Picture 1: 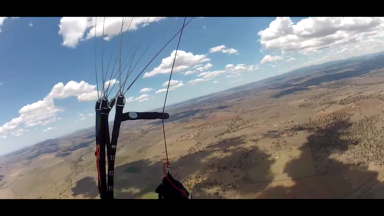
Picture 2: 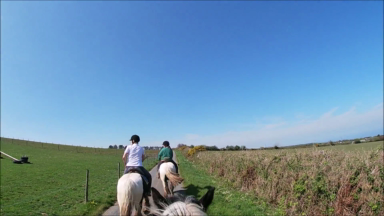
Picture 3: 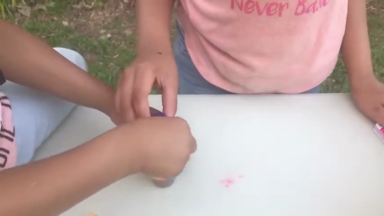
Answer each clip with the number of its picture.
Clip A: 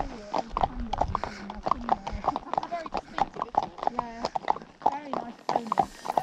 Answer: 2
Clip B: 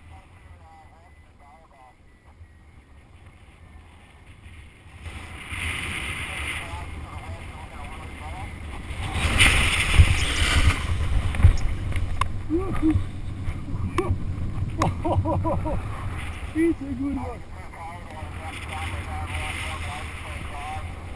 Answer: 1